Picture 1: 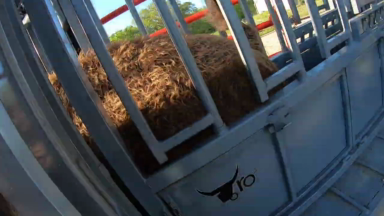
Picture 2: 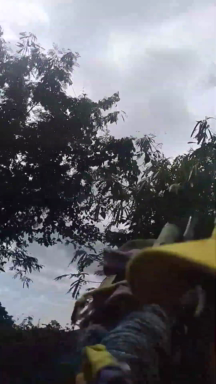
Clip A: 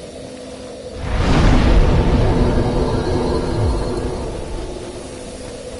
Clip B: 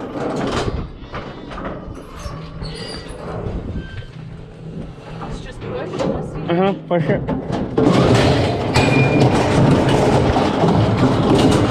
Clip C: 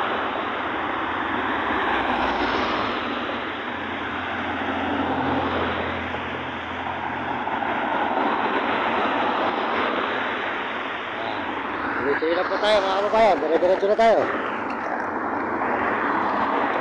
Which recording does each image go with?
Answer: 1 B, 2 C